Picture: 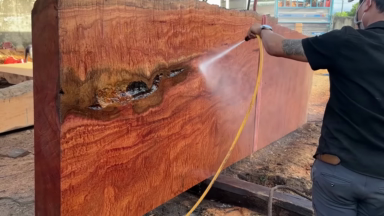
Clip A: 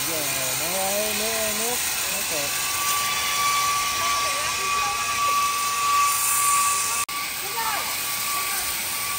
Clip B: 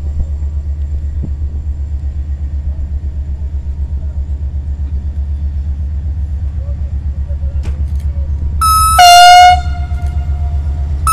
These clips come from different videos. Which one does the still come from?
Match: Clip A